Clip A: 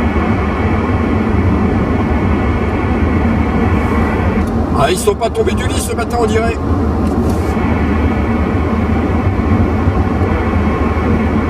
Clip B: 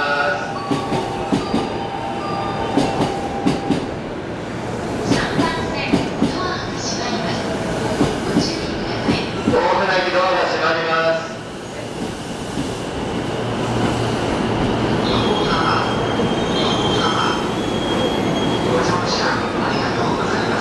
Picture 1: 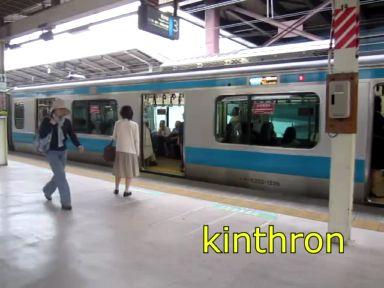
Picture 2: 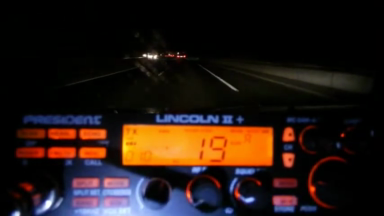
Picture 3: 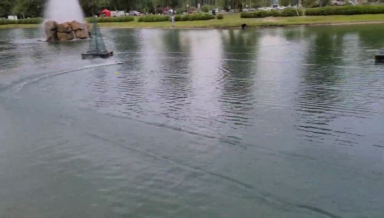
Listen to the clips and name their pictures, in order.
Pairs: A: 2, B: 1